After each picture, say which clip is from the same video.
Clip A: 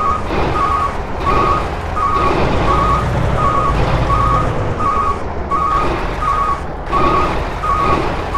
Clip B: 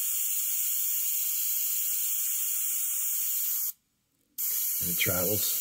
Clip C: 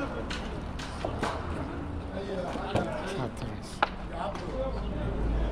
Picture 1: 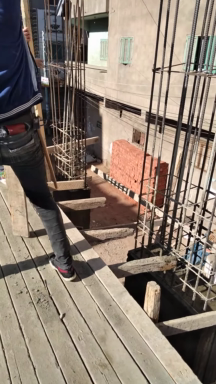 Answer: C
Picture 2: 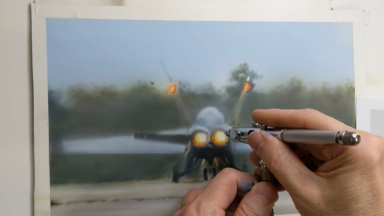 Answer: B